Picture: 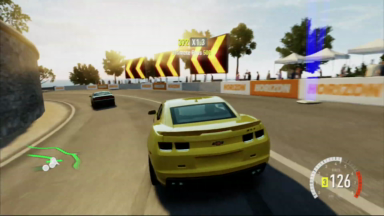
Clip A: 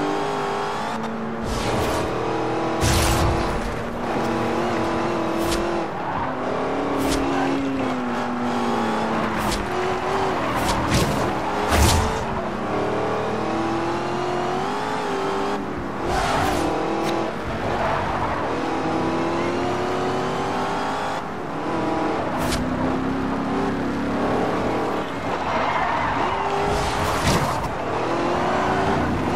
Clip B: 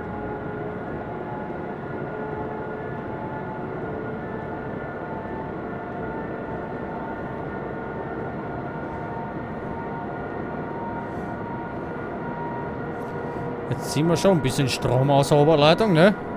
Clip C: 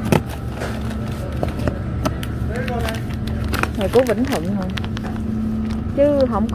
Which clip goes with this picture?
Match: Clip A